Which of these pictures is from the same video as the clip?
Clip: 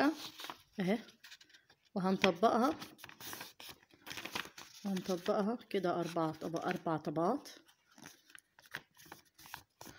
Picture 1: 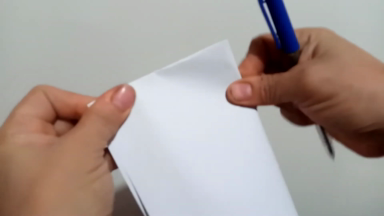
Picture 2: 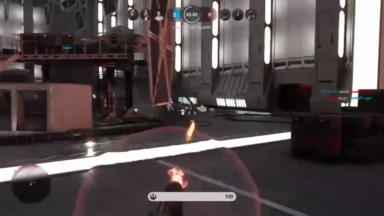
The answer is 1